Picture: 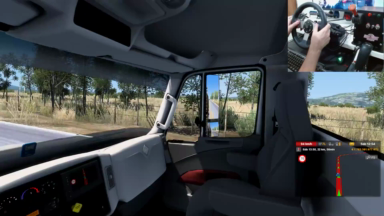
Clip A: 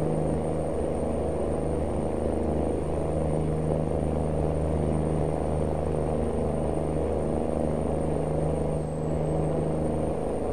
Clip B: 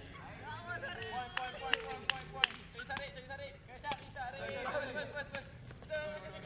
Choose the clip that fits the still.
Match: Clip A